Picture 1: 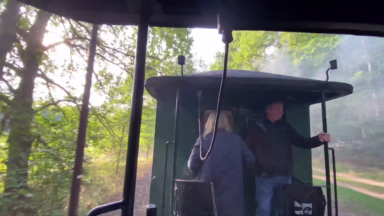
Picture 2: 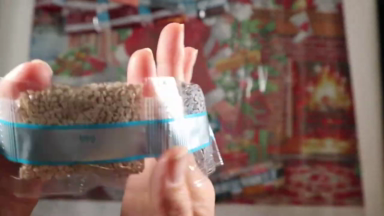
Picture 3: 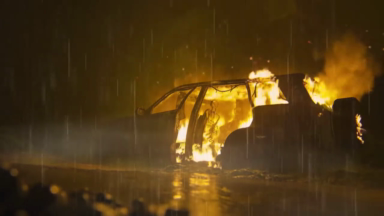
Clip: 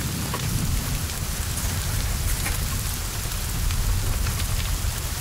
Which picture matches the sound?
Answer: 3